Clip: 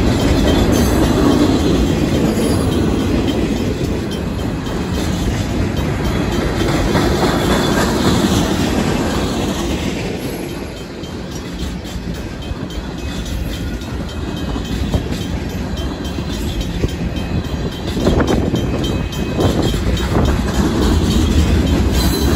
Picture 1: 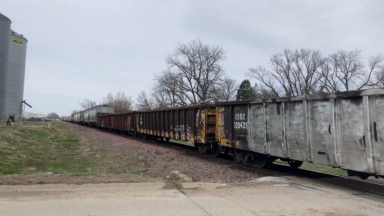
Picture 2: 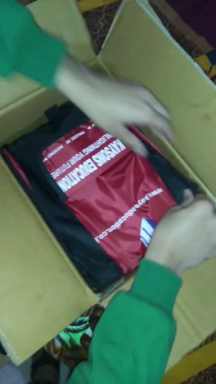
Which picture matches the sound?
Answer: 1